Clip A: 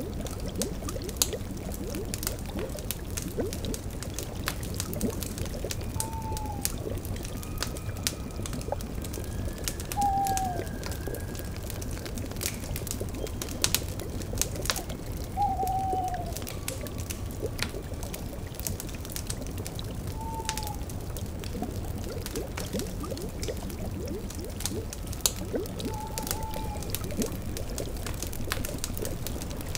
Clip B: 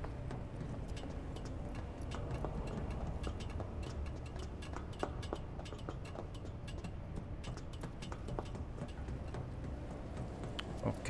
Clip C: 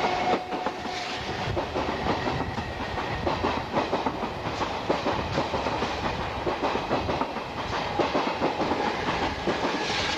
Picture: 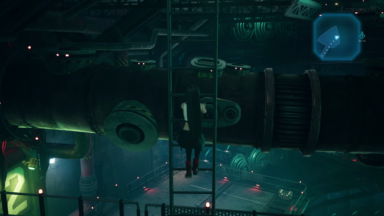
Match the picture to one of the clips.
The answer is B